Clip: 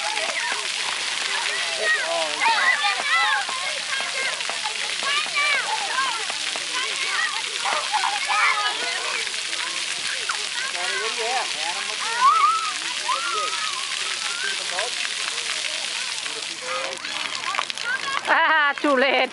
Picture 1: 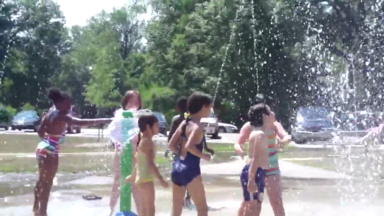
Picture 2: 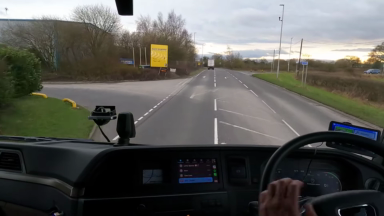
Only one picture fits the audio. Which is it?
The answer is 1